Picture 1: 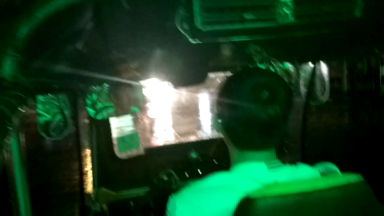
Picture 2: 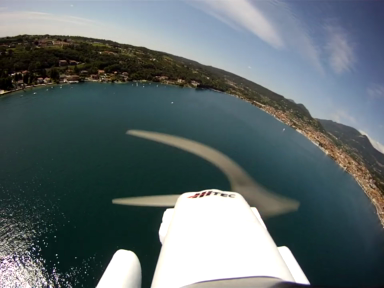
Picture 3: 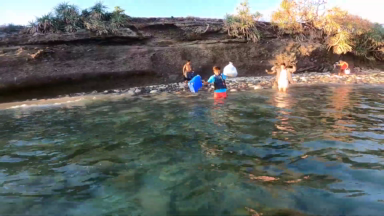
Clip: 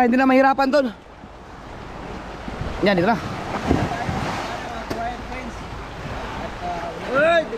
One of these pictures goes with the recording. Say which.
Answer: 3